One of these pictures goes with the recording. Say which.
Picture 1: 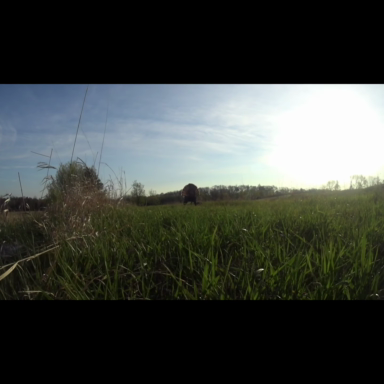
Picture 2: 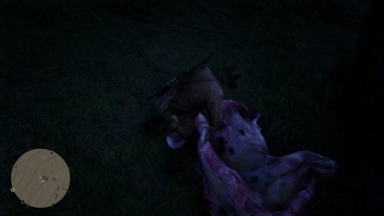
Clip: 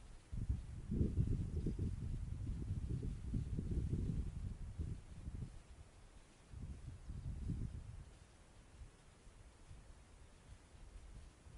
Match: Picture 1